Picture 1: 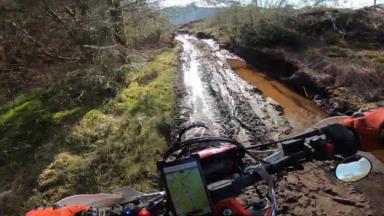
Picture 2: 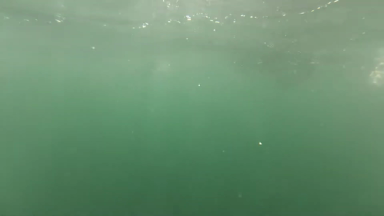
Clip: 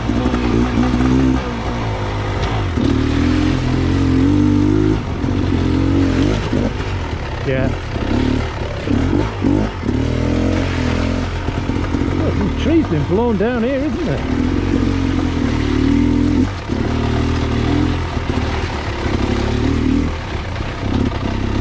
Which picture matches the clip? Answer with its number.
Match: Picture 1